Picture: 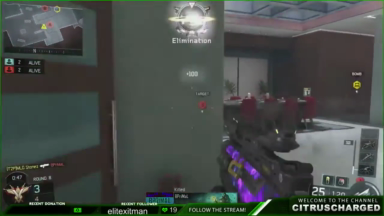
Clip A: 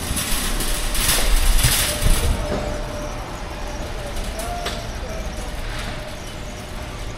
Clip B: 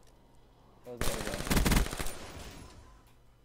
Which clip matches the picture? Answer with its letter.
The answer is B